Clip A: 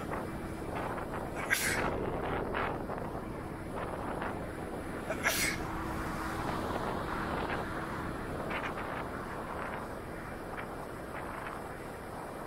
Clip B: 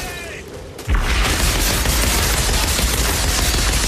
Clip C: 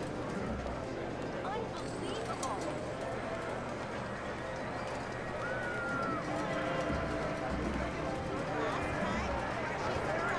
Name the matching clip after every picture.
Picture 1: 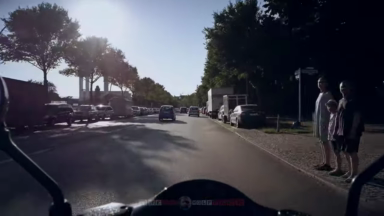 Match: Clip A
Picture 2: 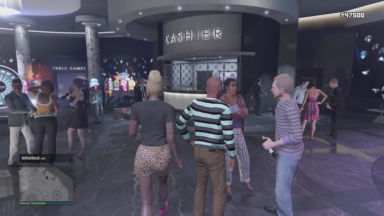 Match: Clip C